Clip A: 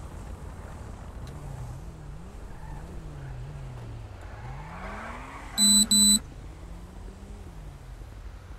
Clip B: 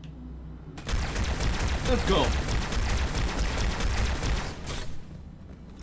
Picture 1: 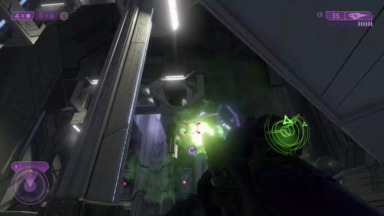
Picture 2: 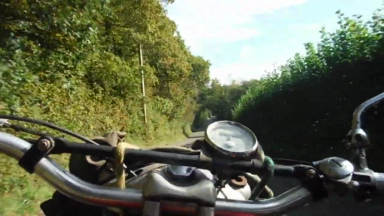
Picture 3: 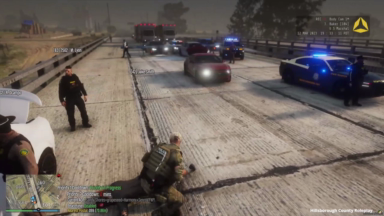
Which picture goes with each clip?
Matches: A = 3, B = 1